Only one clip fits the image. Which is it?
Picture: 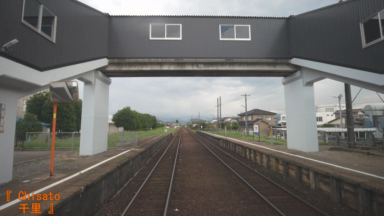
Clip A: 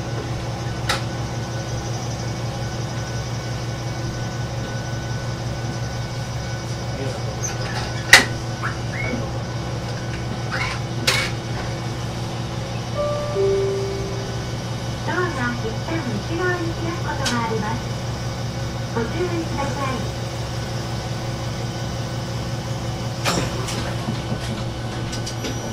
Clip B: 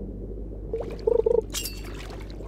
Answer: A